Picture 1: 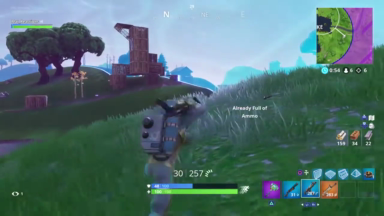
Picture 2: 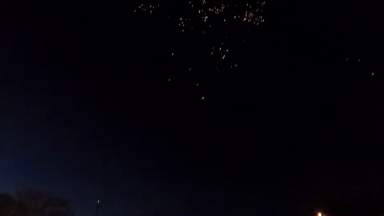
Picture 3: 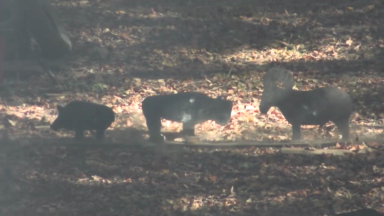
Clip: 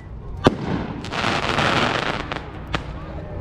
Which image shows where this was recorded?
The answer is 2